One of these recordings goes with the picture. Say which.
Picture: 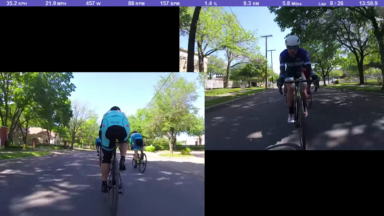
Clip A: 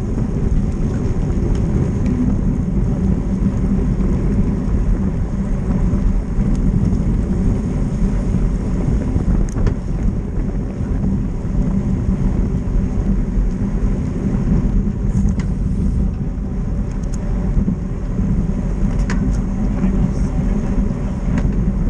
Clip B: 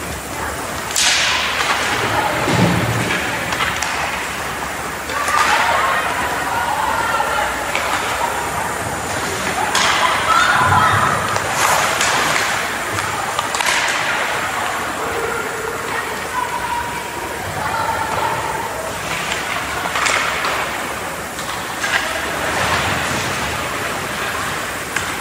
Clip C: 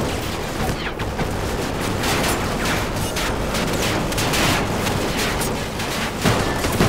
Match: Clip A